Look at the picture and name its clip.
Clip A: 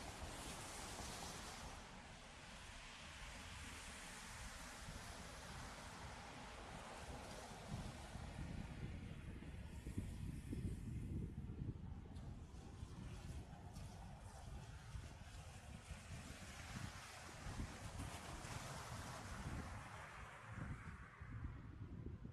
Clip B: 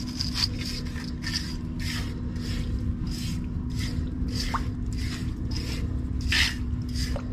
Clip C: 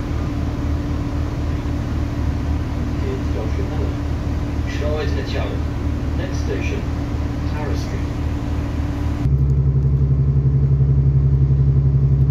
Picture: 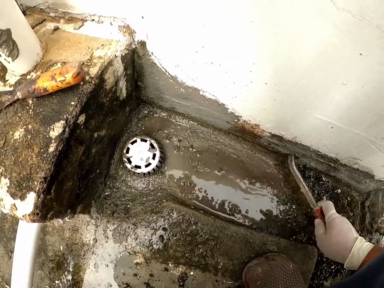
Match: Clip B